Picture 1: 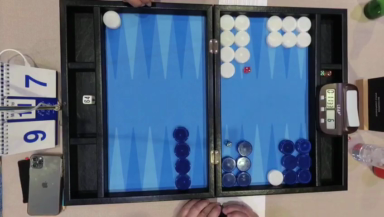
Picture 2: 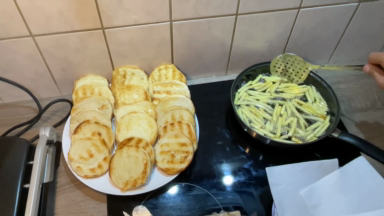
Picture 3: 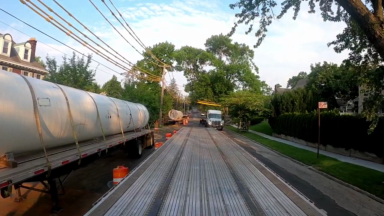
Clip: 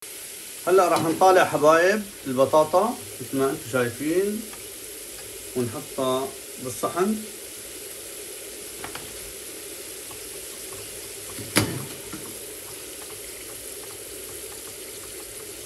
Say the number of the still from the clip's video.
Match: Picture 2